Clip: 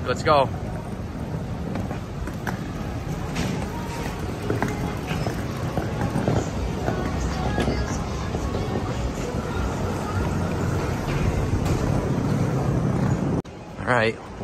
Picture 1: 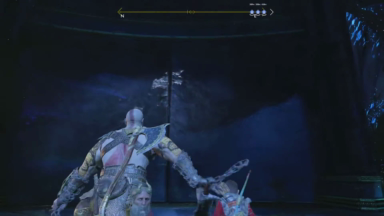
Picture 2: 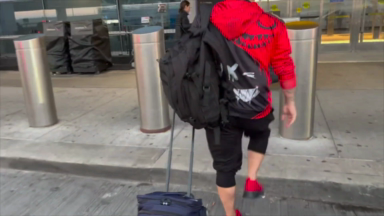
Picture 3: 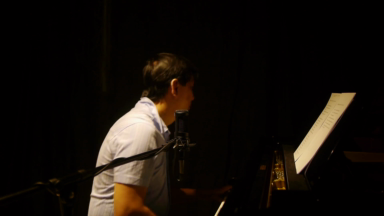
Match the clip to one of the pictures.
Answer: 2